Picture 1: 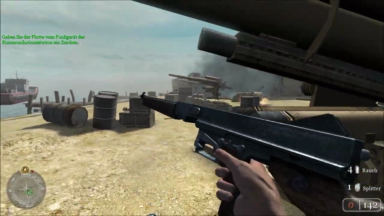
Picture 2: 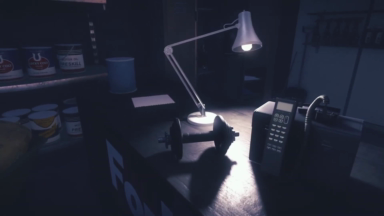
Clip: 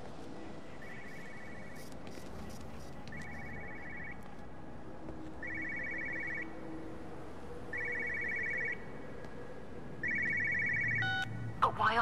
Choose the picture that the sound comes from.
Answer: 2